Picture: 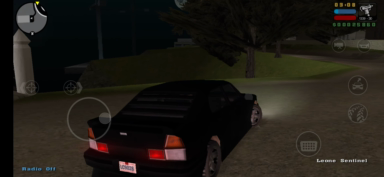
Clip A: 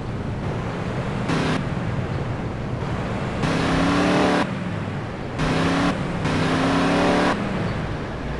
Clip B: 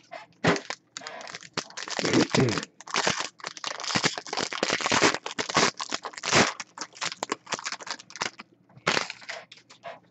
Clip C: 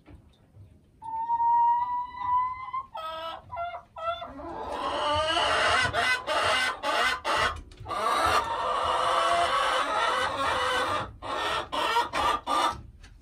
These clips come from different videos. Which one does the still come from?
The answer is A